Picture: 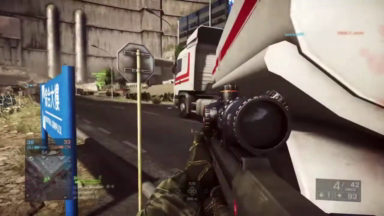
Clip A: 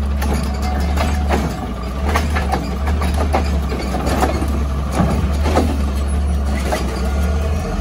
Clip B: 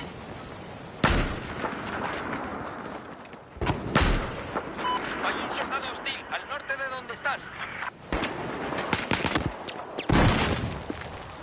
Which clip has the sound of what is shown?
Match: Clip B